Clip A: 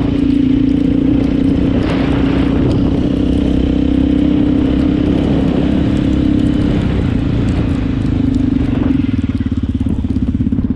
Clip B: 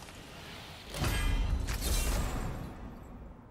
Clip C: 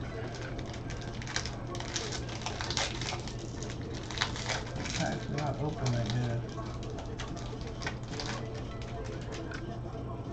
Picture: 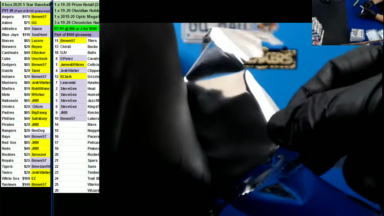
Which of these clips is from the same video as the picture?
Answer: C